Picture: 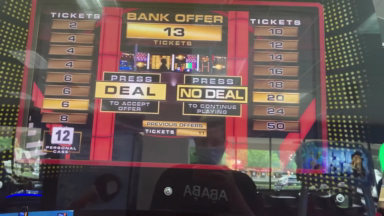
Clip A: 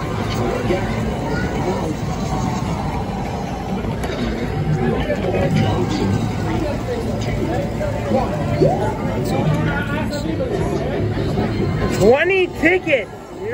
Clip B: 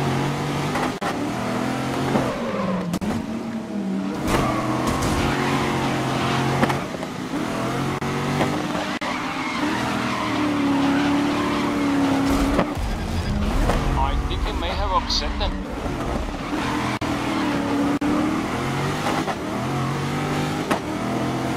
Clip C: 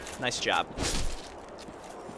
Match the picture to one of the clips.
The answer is A